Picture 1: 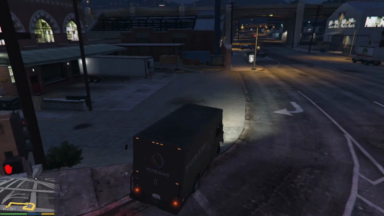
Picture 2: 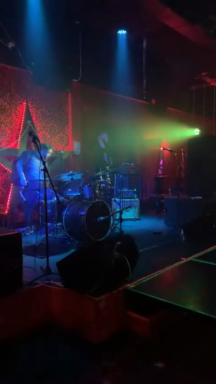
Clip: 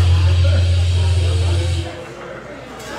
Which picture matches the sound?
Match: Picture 2